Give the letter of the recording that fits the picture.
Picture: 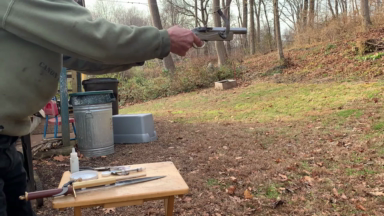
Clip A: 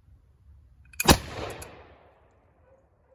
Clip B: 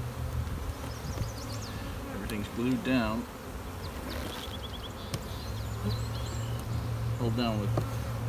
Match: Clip A